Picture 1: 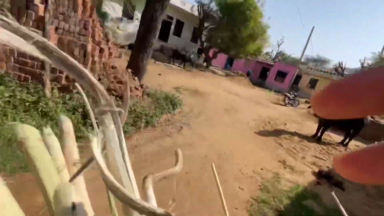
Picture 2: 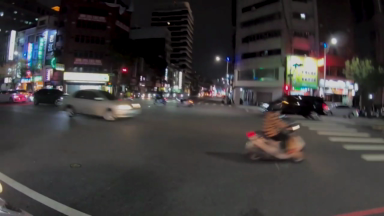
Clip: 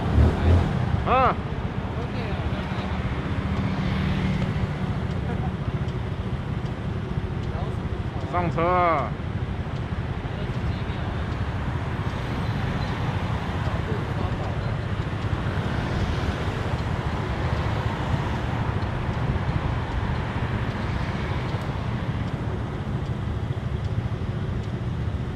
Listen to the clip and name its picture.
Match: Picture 2